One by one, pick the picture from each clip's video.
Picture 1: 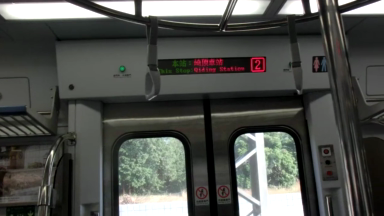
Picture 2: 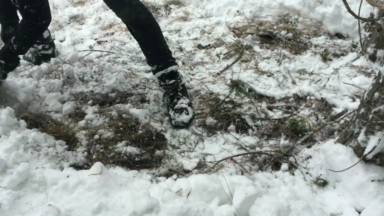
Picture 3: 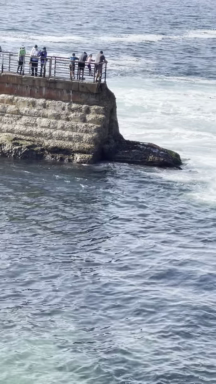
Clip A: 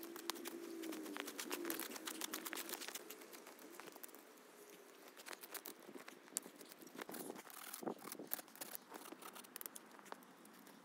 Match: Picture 2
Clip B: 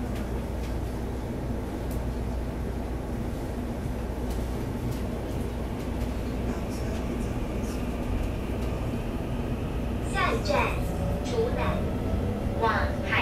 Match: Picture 1